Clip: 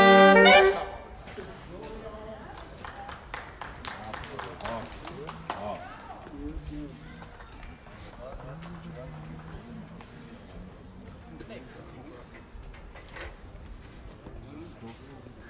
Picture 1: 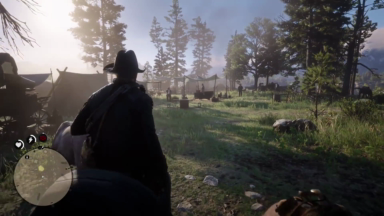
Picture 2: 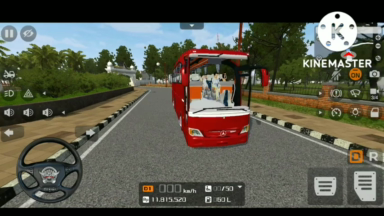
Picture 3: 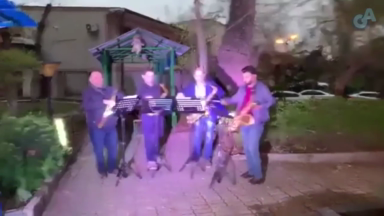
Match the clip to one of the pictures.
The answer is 3